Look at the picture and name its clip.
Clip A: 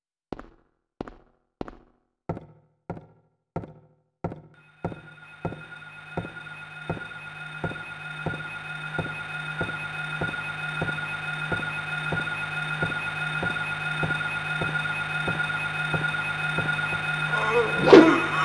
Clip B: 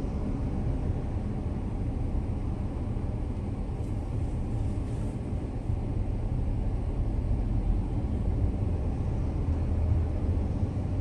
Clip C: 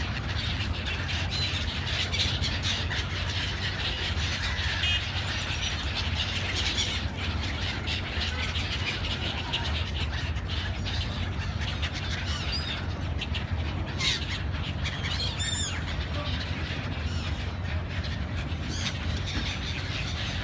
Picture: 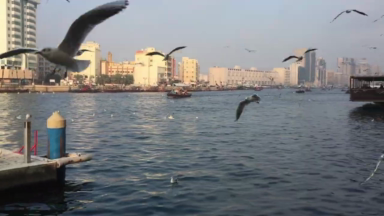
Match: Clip C